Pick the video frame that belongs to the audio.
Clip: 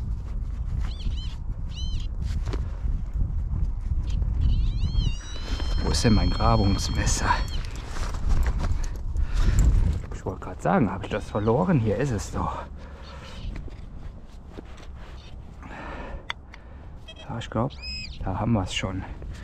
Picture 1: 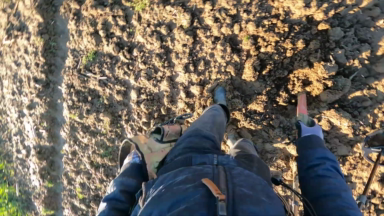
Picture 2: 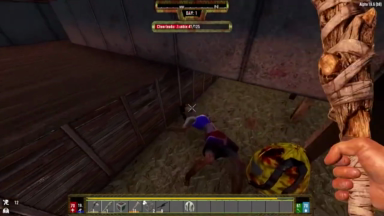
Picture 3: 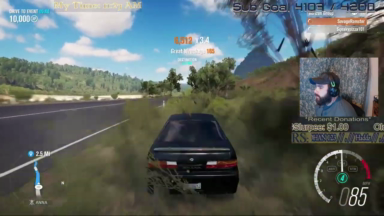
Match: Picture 1